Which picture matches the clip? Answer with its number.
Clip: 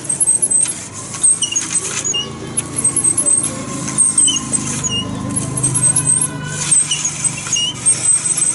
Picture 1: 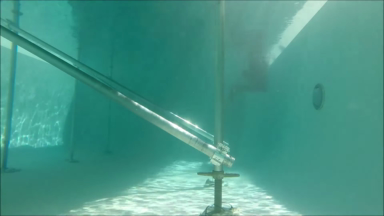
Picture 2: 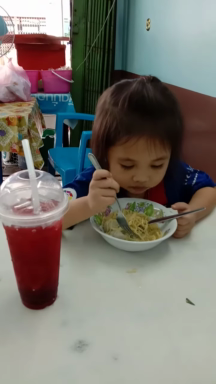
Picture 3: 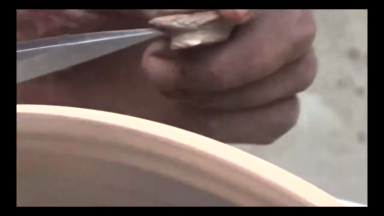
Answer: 3